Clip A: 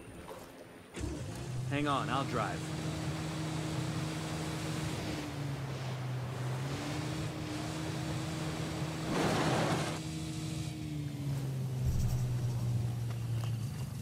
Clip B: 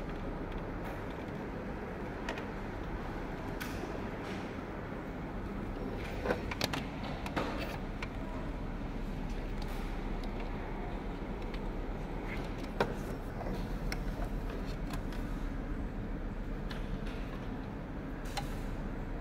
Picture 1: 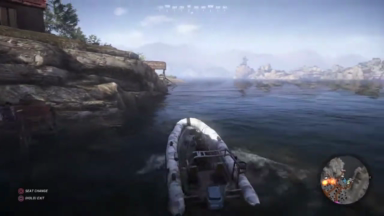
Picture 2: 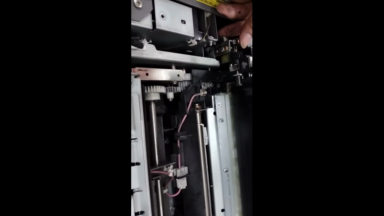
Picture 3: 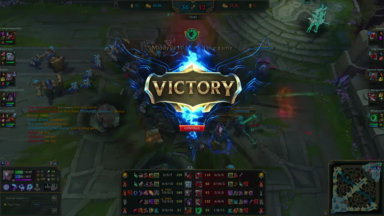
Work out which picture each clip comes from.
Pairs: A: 1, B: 2